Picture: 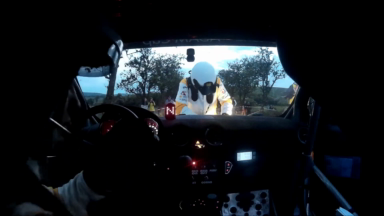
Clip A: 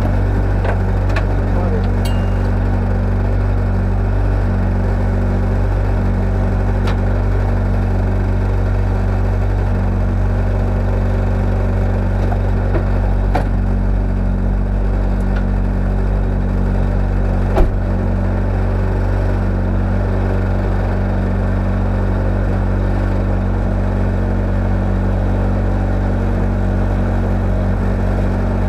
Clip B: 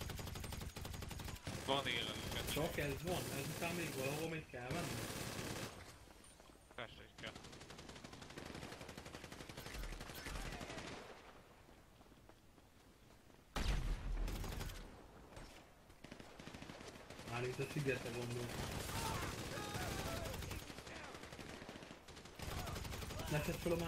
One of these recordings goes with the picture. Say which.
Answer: A